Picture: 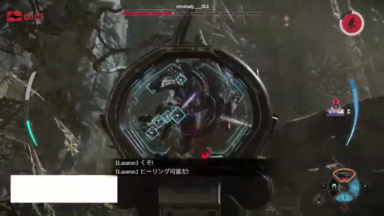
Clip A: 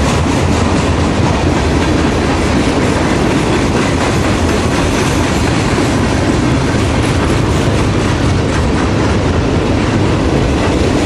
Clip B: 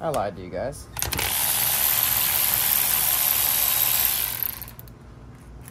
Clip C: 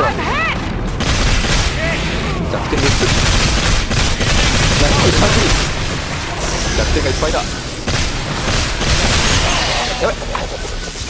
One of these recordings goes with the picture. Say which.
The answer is C